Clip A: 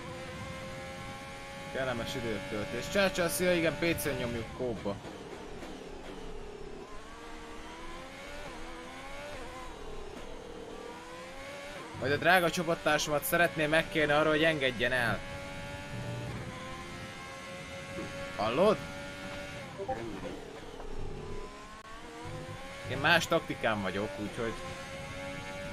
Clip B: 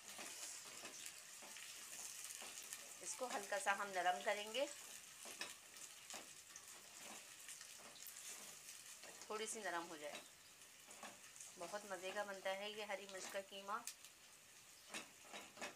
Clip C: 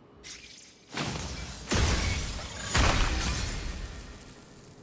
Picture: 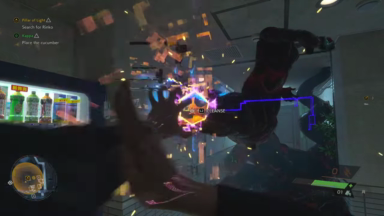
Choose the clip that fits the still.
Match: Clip C